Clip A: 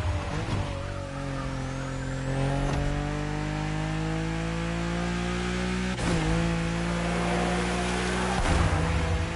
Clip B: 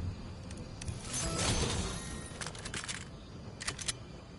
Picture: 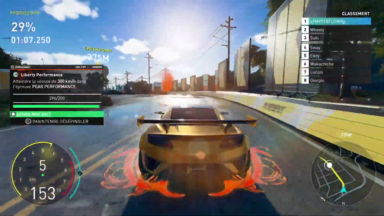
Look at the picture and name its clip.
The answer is A